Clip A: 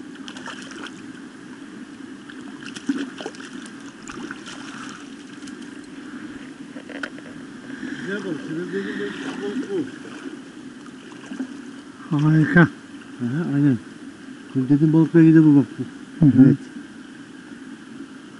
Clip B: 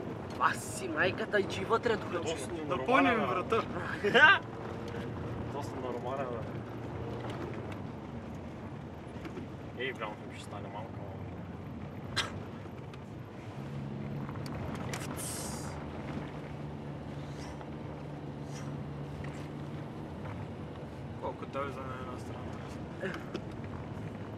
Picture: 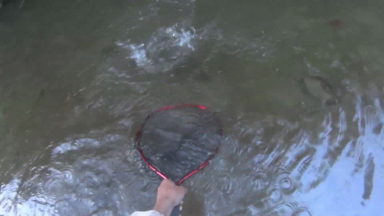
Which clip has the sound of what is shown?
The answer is A